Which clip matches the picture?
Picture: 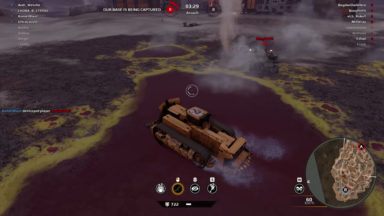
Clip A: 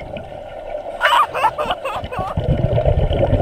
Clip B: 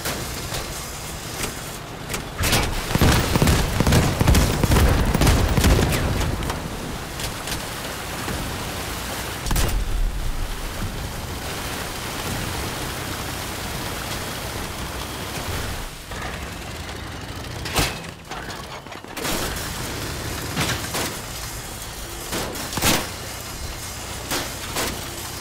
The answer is B